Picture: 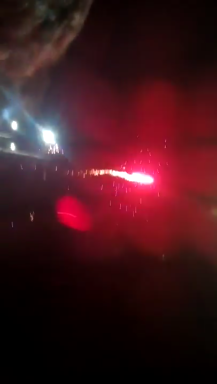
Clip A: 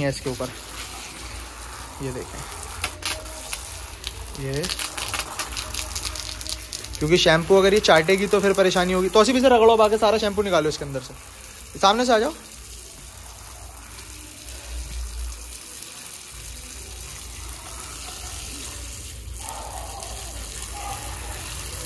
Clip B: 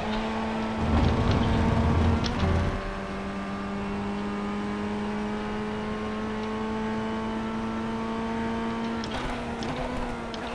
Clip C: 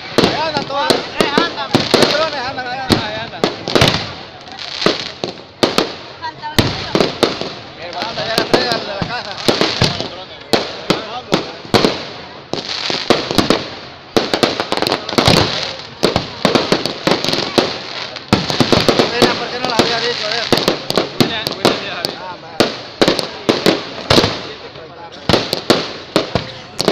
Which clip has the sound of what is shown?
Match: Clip C